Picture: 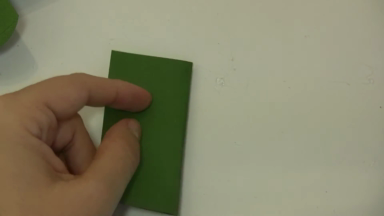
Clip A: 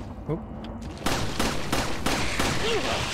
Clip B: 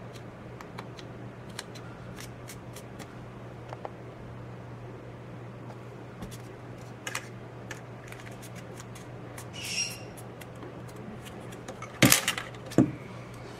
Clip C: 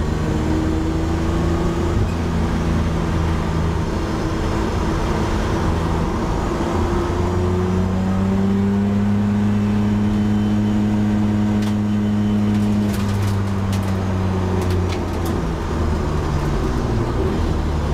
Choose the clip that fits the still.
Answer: B